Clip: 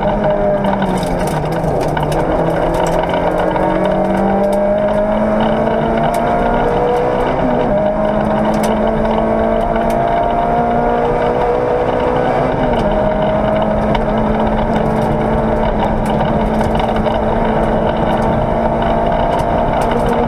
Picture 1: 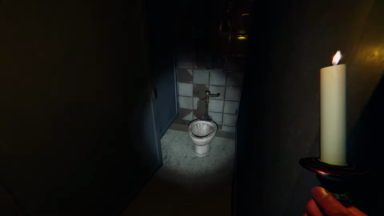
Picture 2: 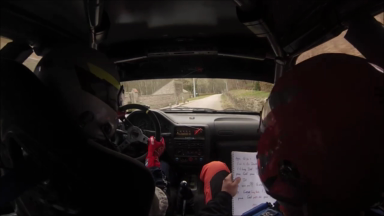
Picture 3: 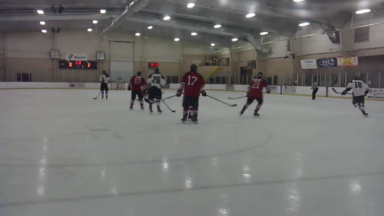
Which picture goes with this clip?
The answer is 2